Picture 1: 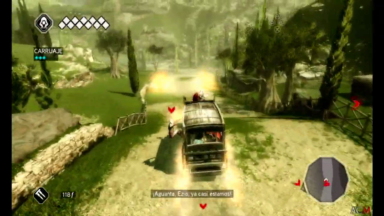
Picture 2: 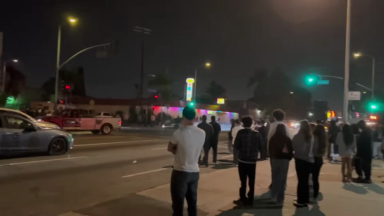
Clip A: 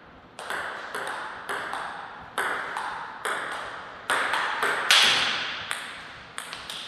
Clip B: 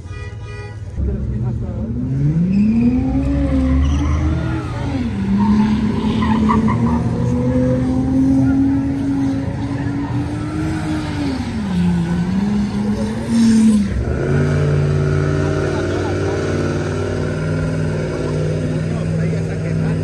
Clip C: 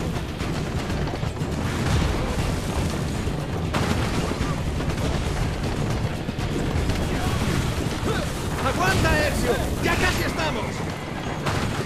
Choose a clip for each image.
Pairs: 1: C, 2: B